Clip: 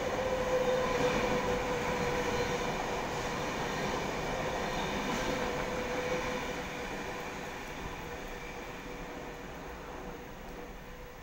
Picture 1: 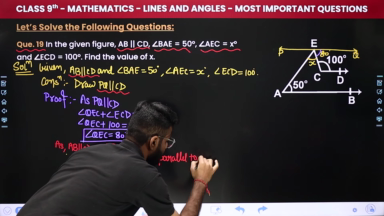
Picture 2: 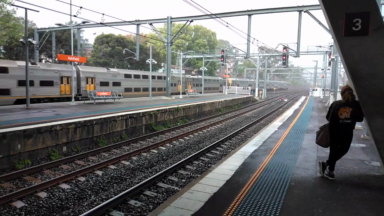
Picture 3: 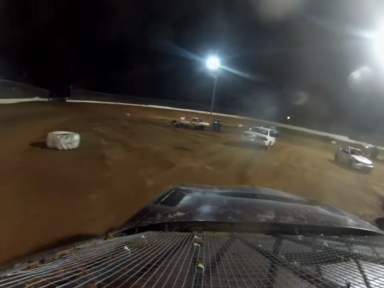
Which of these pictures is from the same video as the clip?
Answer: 2